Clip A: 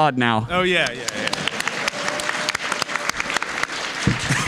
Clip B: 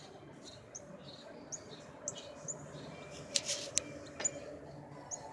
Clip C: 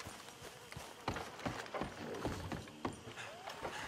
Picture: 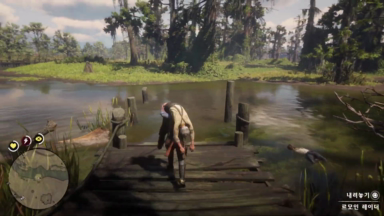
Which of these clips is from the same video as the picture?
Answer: C